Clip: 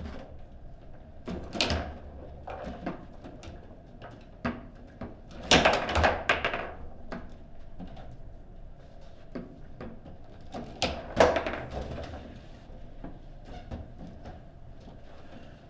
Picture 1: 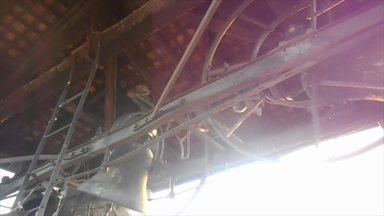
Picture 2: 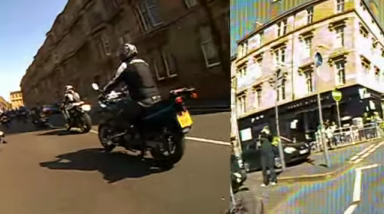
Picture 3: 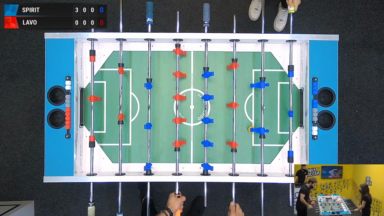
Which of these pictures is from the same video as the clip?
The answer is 3